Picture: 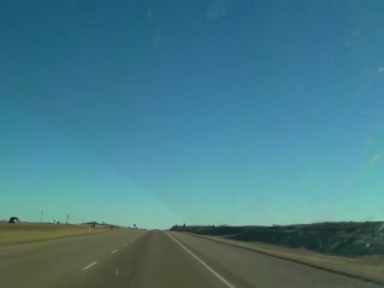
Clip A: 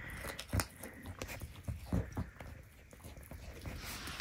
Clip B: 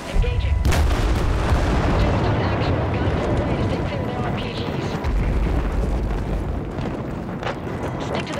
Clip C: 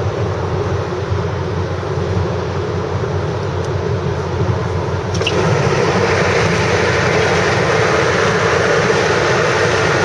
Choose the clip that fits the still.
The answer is C